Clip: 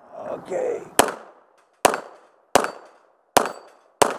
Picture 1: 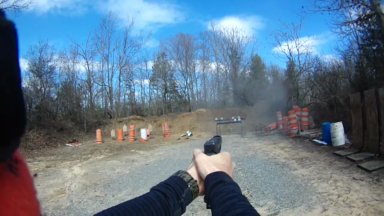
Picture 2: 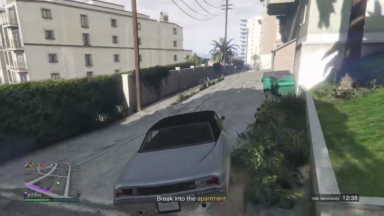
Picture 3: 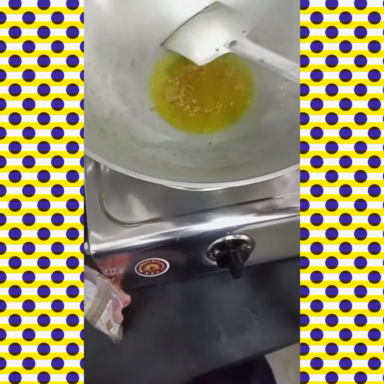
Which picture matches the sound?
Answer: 1